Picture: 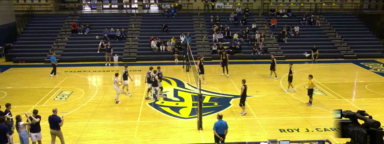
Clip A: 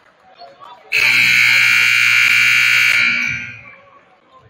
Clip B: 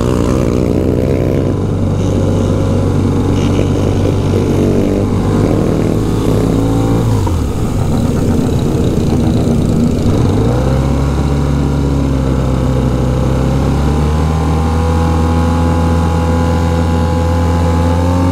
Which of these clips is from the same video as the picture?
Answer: A